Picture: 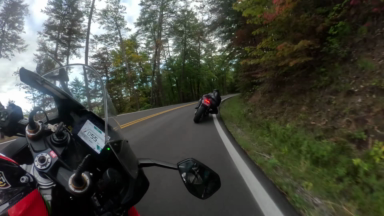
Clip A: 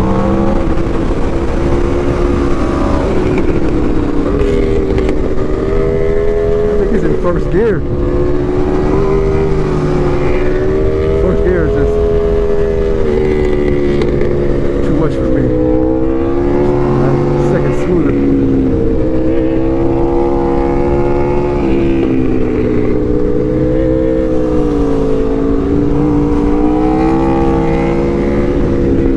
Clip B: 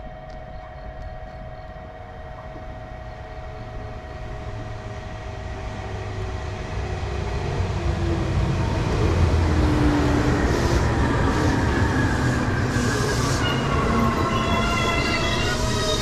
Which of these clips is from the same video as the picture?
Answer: A